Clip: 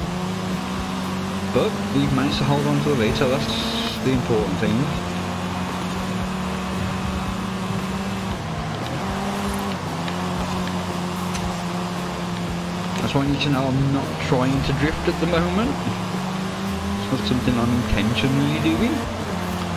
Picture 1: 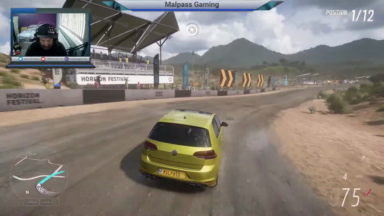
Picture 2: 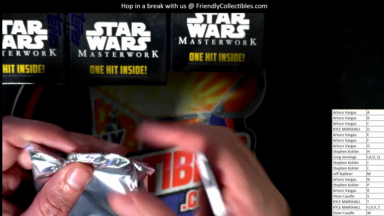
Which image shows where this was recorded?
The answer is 1